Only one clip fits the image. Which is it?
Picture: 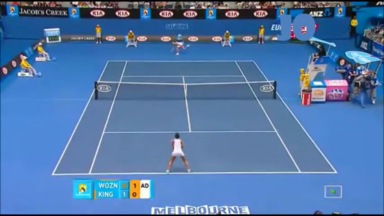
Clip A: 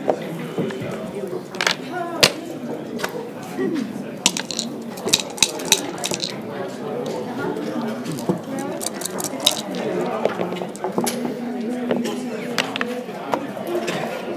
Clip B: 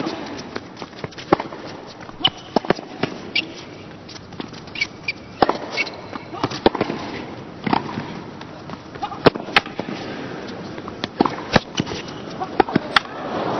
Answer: B